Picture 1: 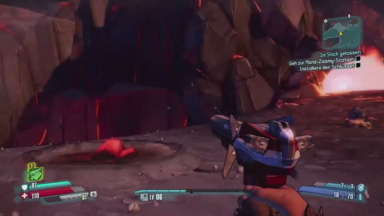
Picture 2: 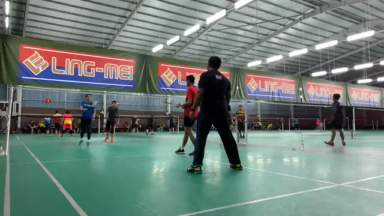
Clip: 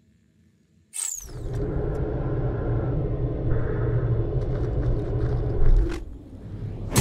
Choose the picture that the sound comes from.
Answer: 1